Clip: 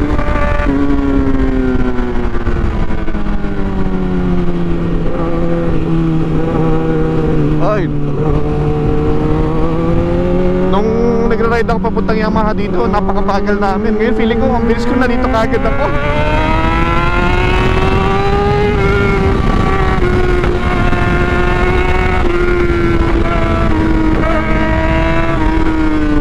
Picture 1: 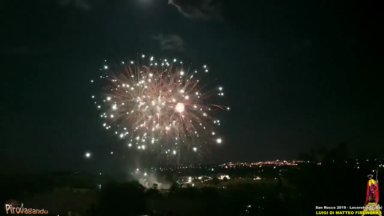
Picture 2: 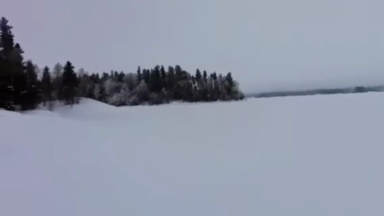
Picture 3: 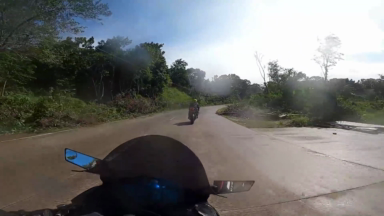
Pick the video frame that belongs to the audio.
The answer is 3